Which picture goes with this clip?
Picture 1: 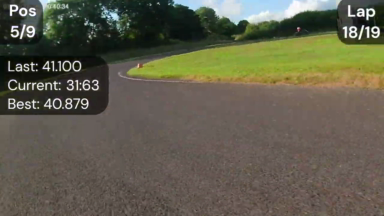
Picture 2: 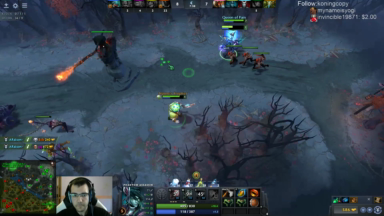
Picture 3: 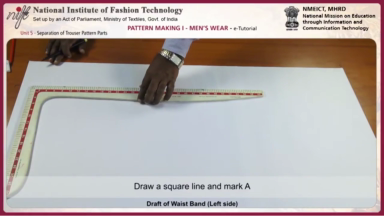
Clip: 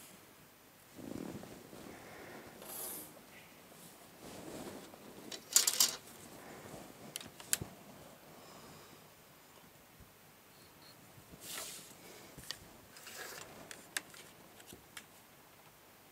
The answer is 3